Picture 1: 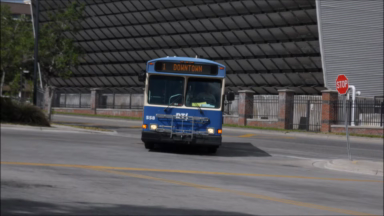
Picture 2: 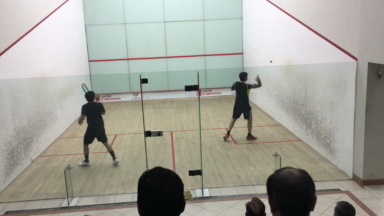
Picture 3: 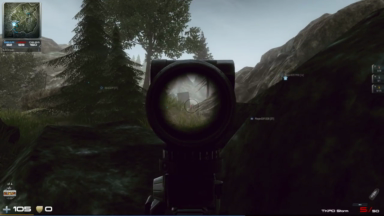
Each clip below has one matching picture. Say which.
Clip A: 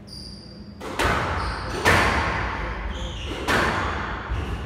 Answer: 2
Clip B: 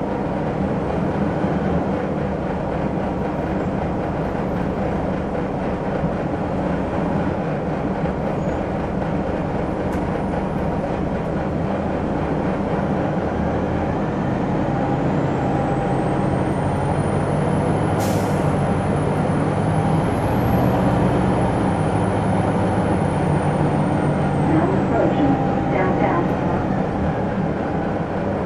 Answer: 1